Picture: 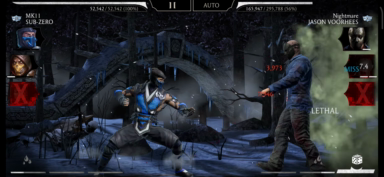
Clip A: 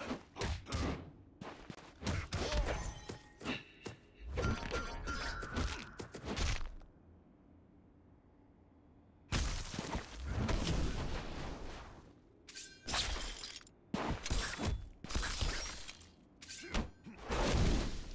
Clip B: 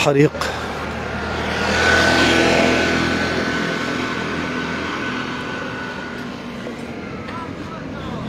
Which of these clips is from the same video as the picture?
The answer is A